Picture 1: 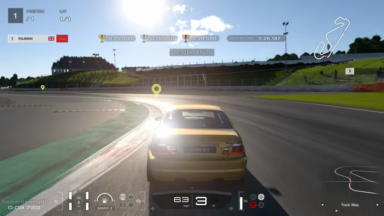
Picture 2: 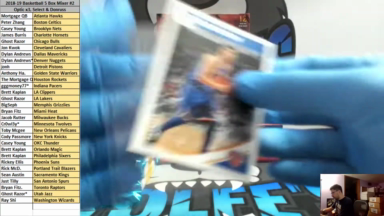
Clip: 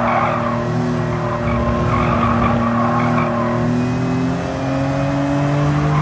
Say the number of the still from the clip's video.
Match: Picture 1